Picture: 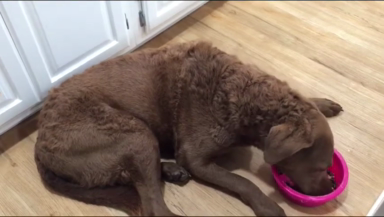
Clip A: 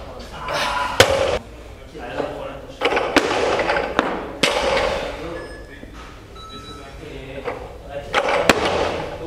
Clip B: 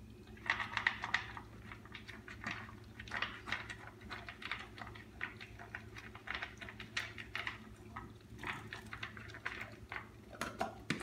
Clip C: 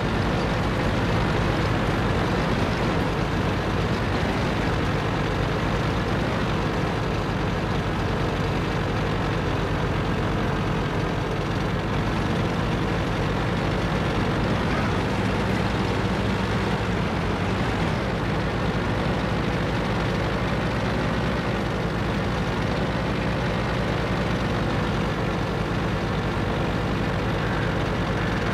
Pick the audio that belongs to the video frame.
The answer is B